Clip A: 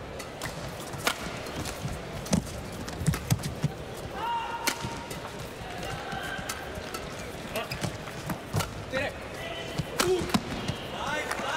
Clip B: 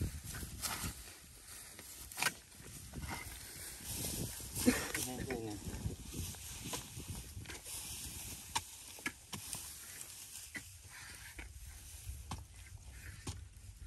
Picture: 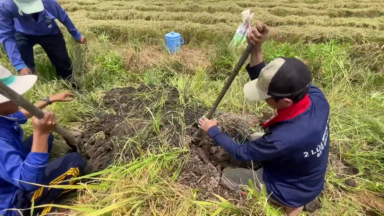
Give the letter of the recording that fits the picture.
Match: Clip B